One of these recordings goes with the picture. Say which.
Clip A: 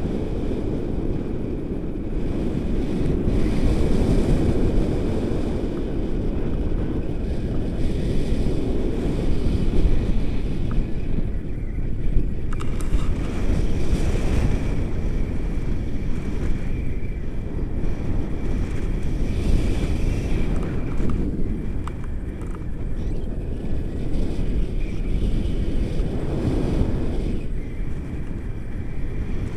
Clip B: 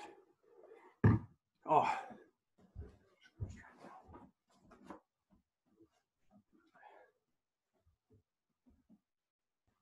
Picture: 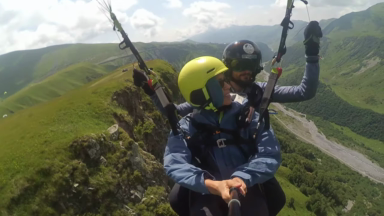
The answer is A